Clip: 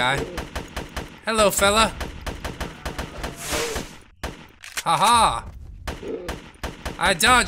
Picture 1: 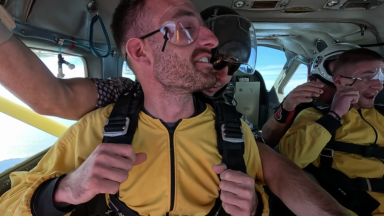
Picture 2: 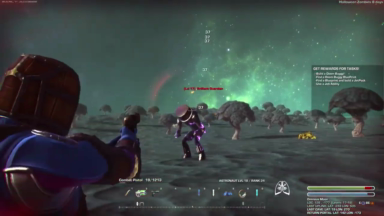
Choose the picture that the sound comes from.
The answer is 2